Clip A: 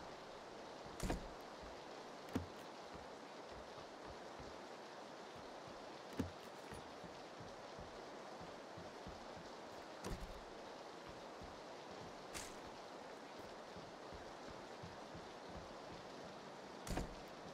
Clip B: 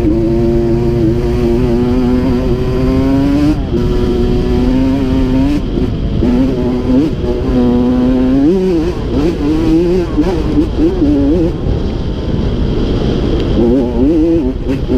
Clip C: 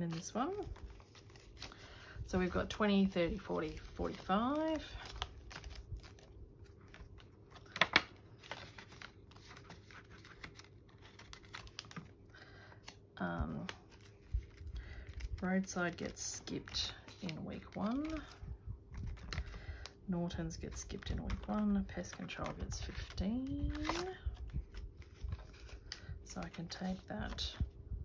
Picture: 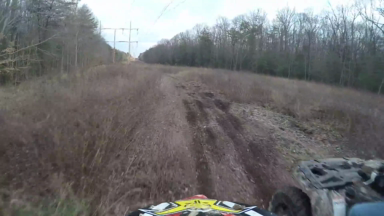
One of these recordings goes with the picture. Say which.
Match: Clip B